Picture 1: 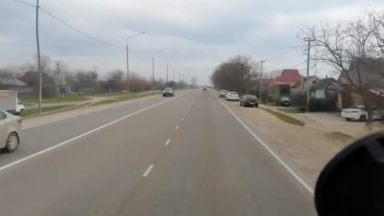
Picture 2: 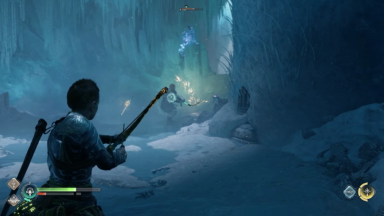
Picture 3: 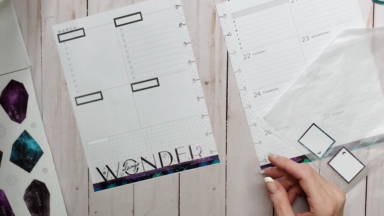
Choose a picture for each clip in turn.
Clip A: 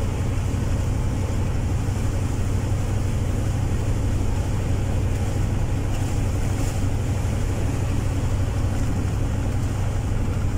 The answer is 1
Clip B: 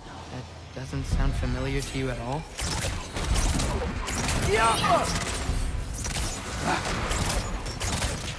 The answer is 2